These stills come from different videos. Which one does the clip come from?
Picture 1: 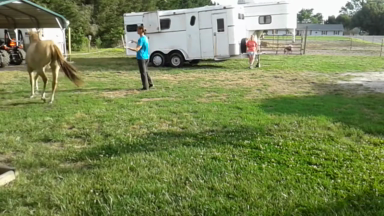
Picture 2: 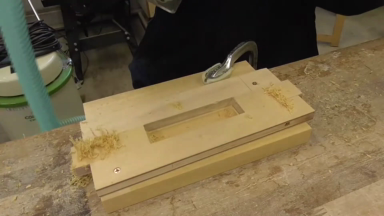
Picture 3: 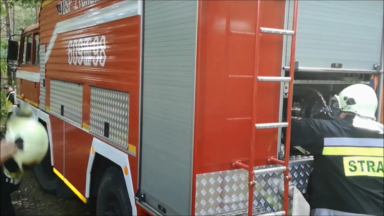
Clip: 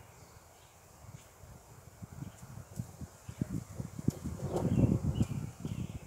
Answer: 1